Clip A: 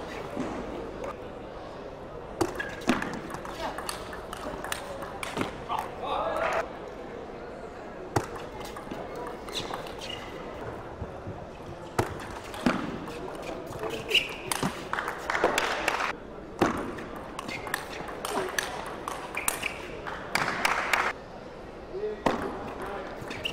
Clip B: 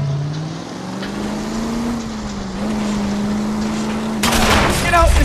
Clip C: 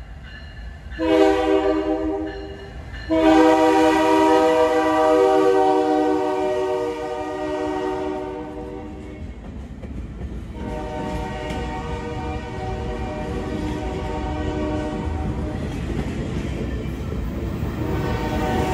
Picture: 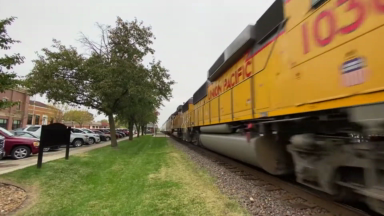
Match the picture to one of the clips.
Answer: C